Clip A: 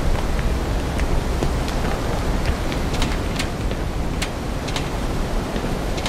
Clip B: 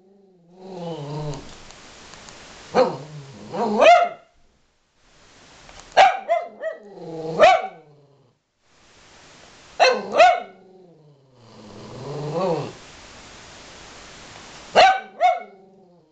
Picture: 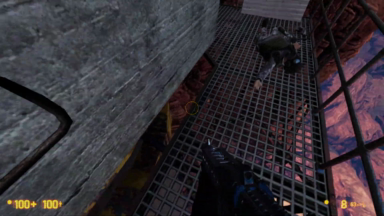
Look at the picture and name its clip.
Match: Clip A